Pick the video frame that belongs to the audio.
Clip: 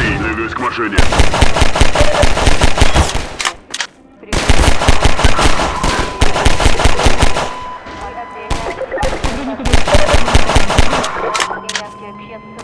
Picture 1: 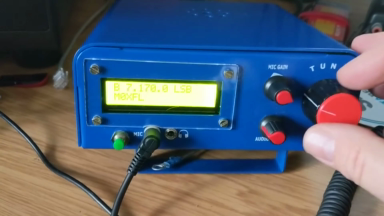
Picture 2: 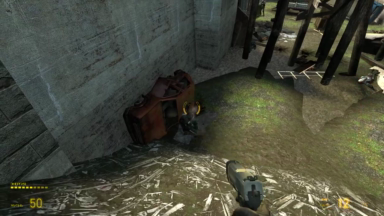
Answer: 2